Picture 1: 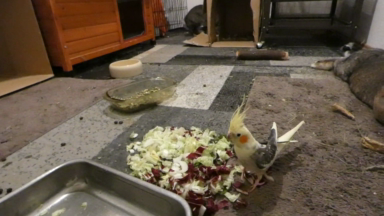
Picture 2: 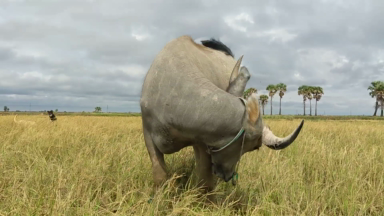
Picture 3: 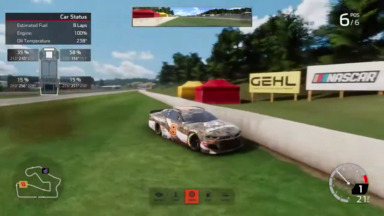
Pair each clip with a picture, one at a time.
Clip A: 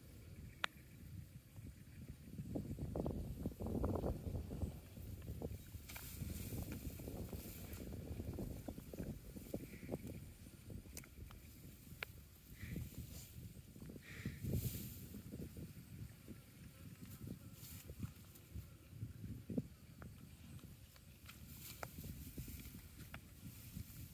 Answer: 2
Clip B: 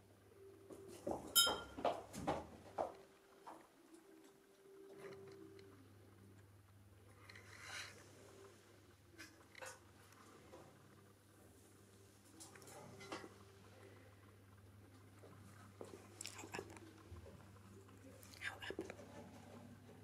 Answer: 1